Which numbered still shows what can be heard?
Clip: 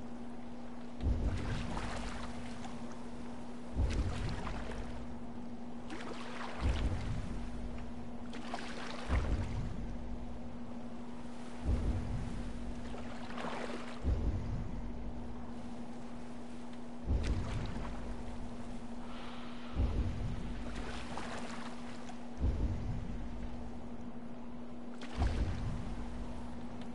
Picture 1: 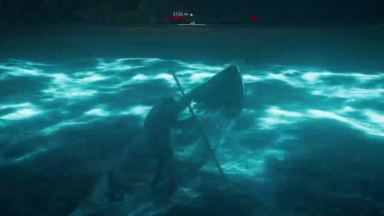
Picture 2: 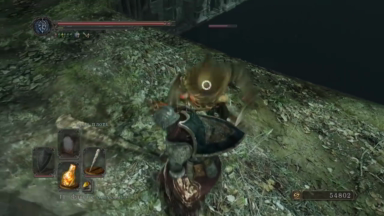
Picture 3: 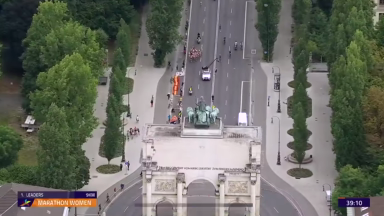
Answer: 1